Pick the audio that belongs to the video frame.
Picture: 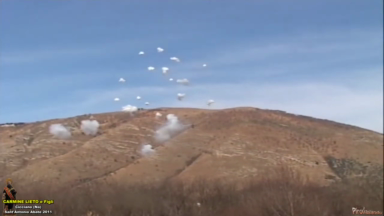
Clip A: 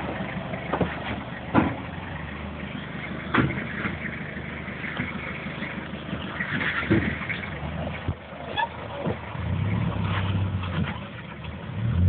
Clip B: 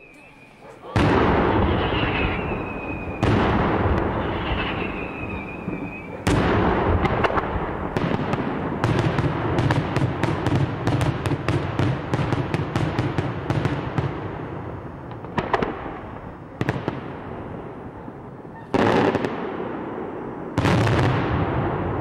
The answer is B